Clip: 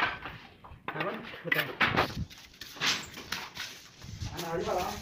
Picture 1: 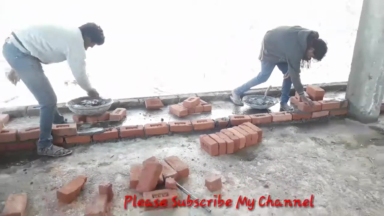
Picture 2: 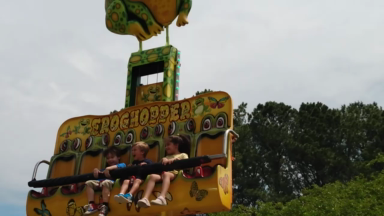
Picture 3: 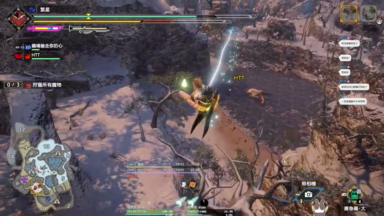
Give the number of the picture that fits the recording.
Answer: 1